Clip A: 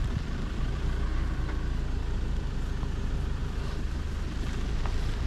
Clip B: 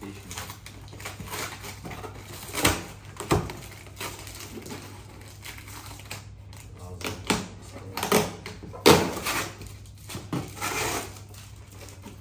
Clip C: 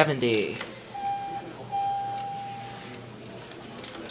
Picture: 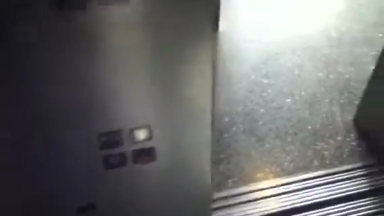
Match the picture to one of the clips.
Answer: C